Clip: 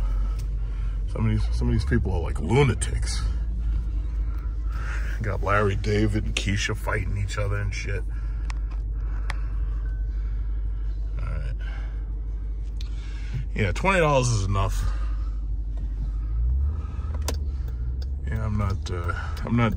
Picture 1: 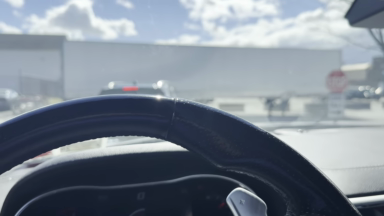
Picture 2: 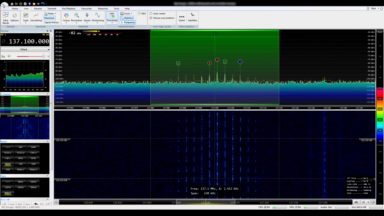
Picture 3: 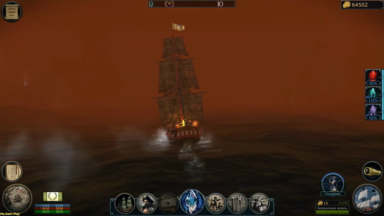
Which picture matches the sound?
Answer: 1